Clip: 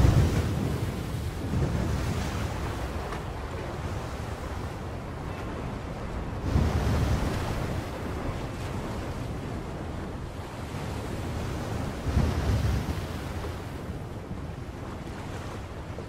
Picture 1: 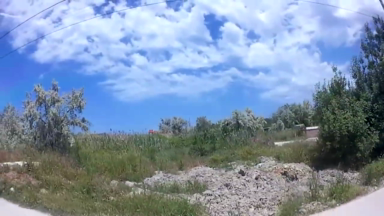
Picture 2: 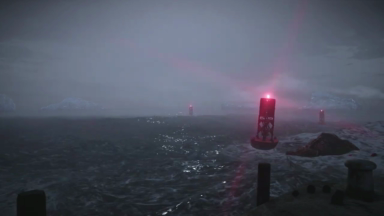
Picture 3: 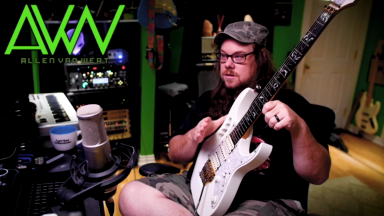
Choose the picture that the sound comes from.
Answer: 2